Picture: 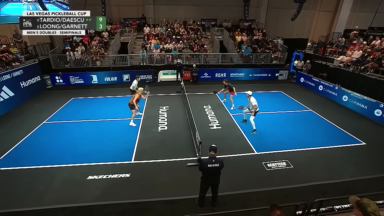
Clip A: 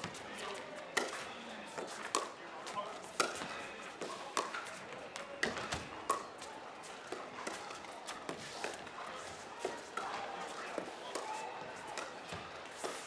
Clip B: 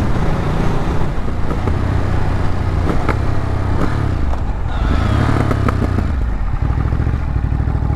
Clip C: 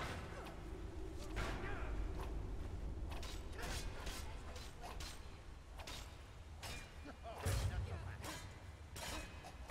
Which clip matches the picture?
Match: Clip A